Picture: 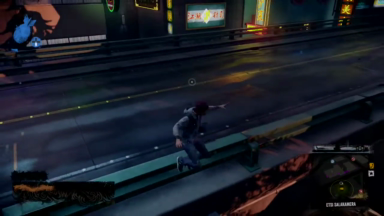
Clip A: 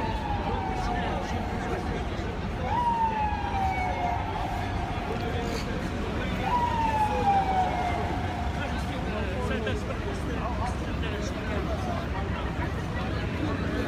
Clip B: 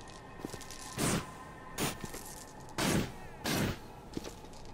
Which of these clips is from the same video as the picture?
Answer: B